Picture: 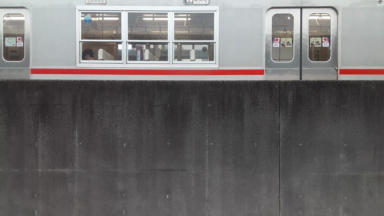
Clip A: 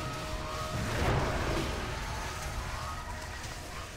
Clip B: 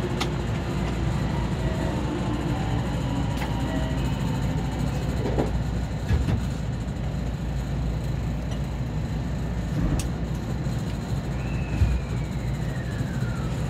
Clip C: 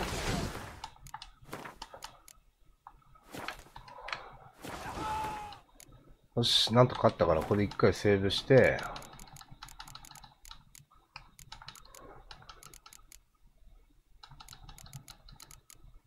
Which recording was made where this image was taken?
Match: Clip B